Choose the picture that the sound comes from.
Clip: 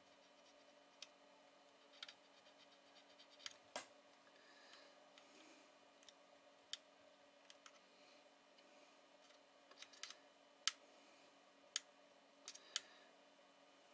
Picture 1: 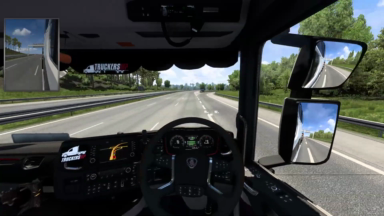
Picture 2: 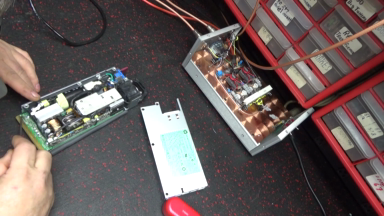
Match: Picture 2